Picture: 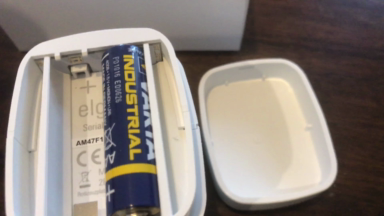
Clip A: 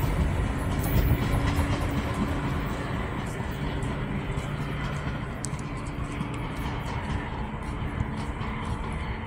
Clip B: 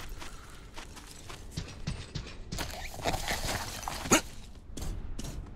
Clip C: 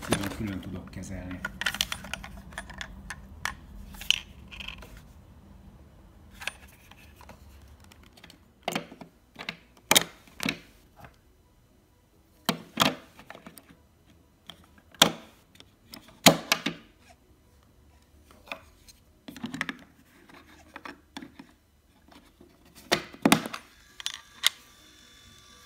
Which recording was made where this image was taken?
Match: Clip C